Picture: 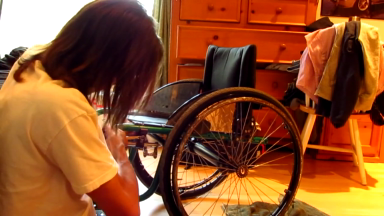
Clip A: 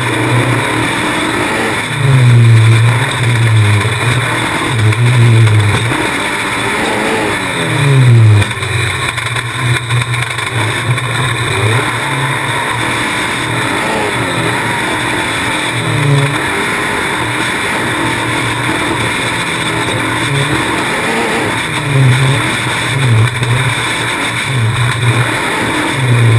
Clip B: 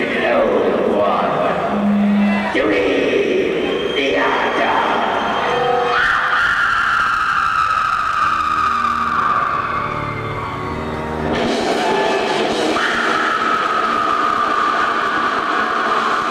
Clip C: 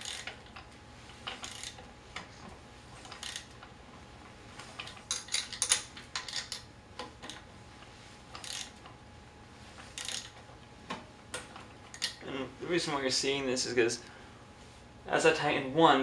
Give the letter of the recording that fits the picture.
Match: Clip C